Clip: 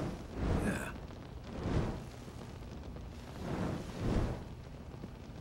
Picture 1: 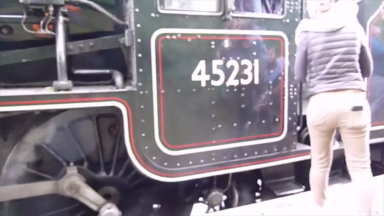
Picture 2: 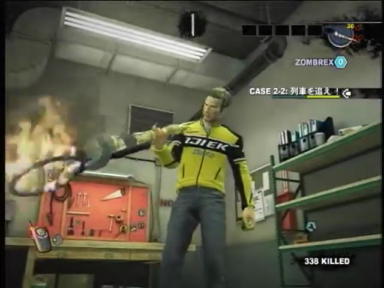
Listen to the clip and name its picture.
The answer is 2